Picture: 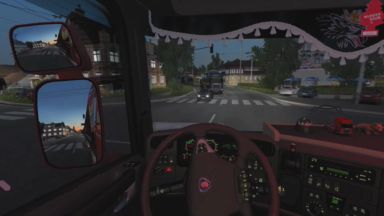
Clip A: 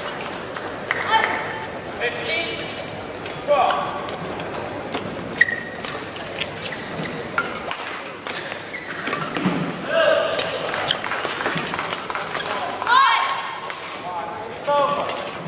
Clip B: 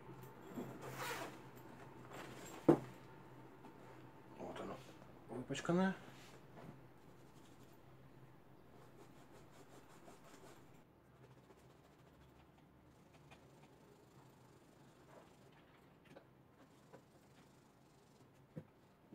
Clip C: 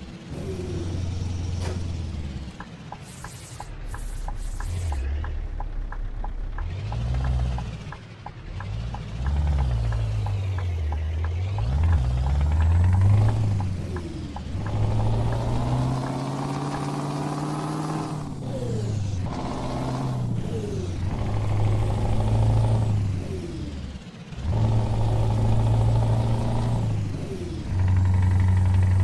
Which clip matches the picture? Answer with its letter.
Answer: C